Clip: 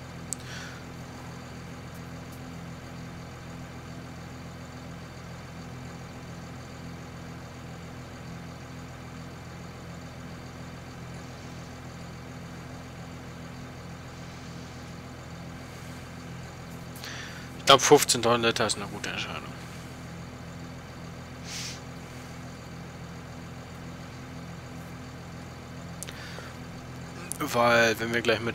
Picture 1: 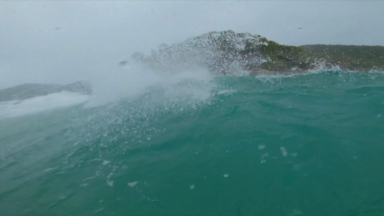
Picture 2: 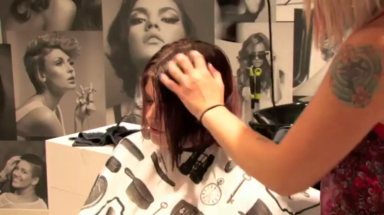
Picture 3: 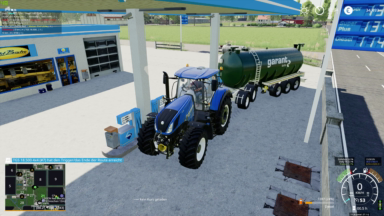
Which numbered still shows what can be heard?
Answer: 3